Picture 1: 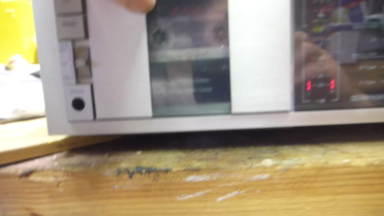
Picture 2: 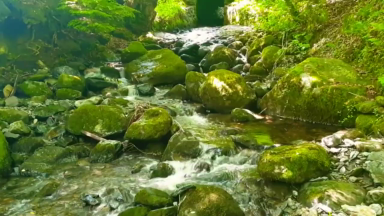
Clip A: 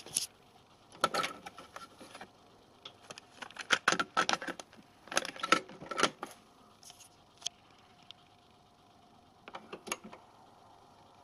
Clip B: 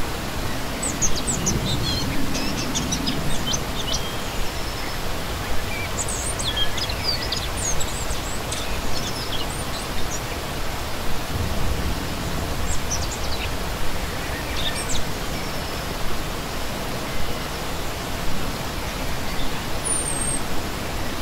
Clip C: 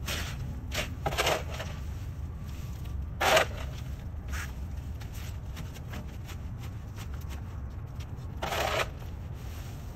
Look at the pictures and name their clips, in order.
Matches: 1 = A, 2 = B